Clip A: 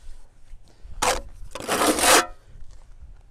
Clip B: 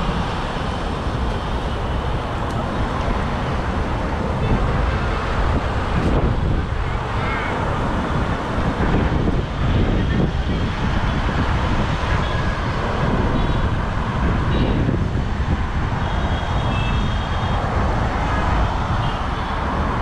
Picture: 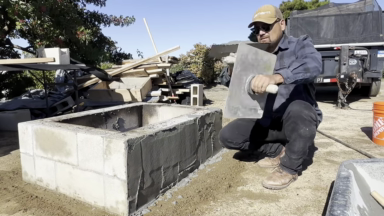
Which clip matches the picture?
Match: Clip A